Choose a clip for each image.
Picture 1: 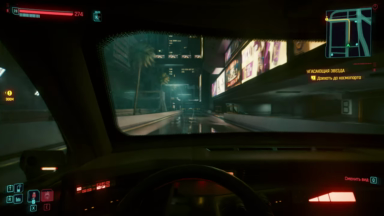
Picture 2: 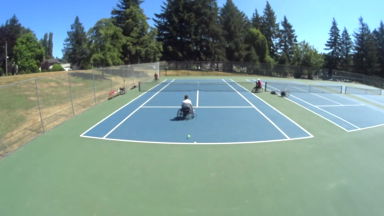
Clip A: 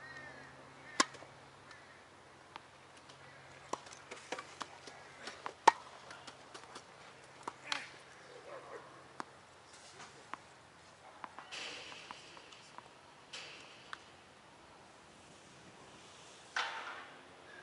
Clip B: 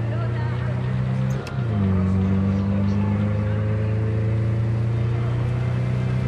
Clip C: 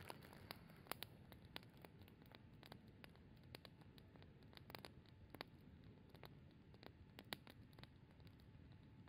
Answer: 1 B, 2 A